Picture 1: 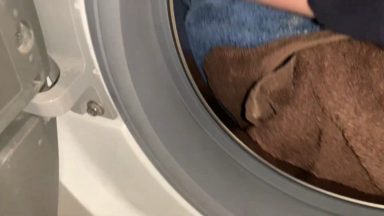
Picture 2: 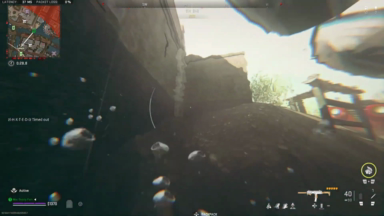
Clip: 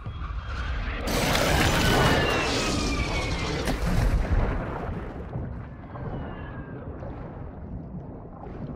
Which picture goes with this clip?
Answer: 2